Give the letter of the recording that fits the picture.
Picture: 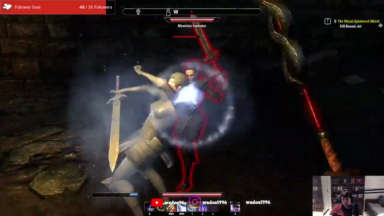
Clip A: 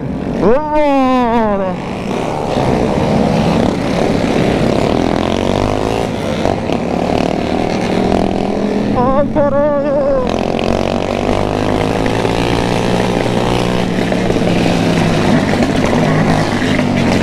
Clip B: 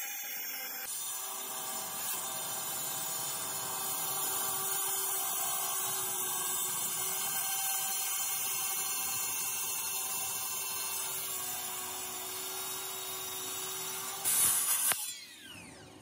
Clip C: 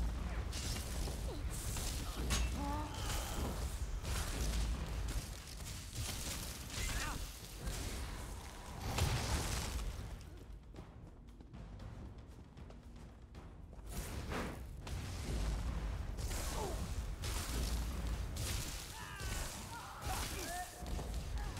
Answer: C